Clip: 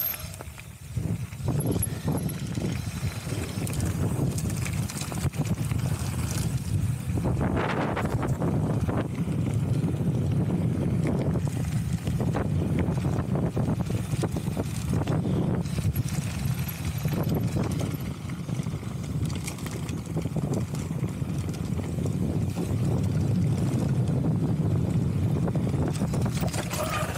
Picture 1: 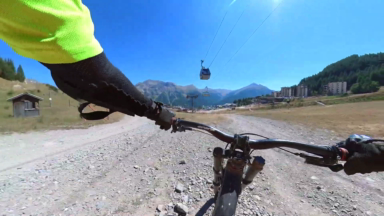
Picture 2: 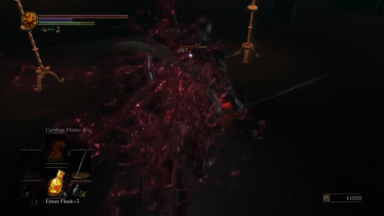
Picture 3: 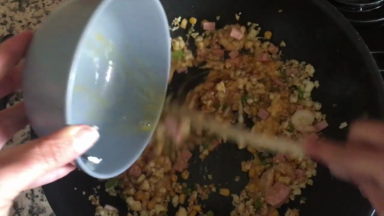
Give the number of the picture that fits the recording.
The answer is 1